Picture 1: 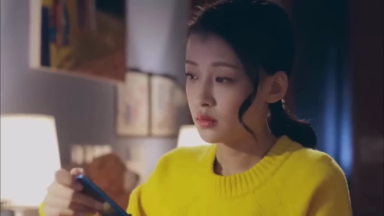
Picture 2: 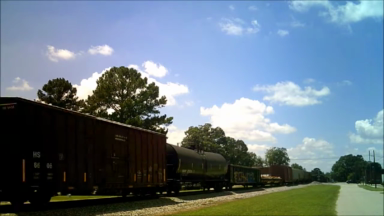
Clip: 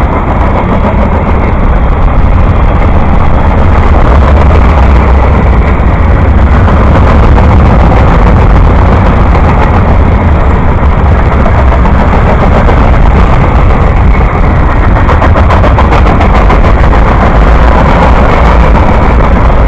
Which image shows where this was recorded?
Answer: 2